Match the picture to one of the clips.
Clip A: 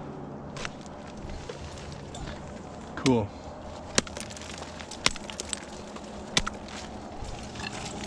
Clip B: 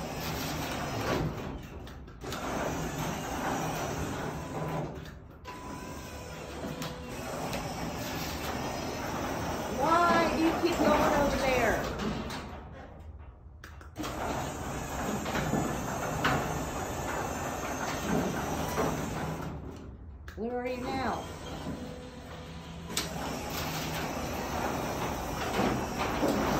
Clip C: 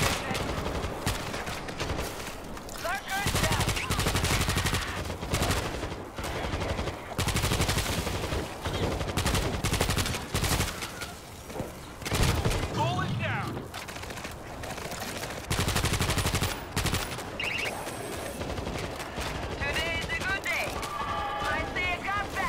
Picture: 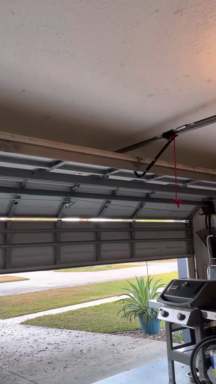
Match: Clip B